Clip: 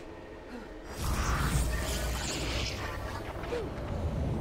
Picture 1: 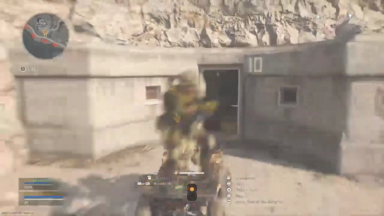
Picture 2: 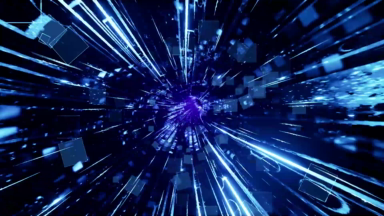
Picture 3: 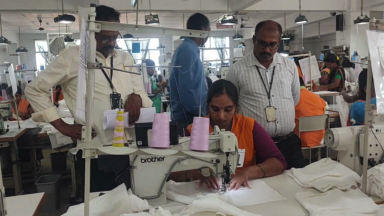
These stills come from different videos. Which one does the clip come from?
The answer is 2